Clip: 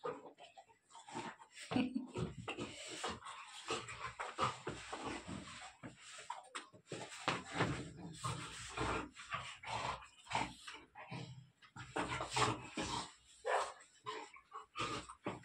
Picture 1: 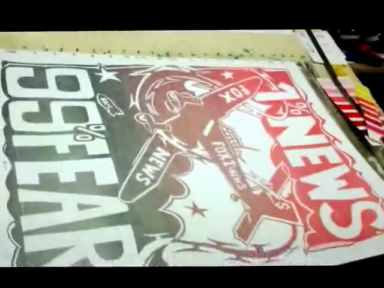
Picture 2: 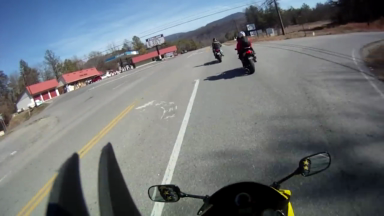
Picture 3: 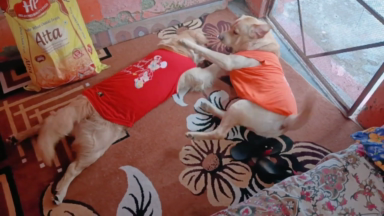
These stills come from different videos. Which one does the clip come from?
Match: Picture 3